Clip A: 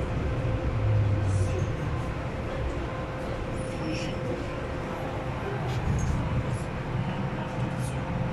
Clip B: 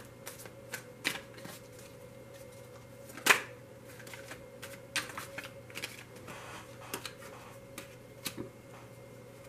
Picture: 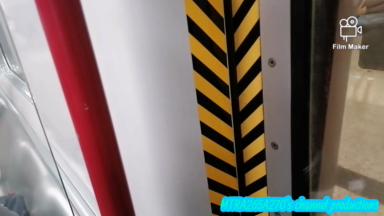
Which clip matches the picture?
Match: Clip A